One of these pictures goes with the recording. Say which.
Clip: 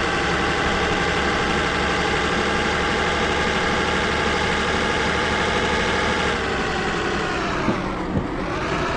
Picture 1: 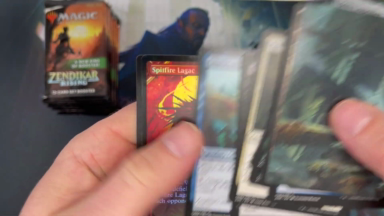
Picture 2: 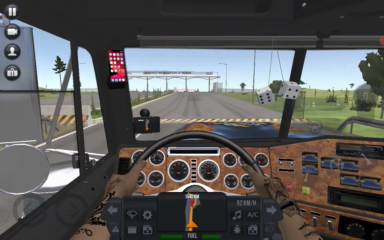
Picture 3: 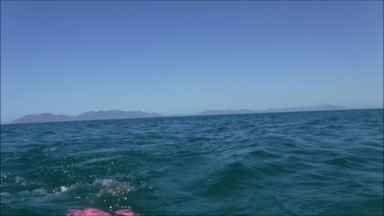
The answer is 2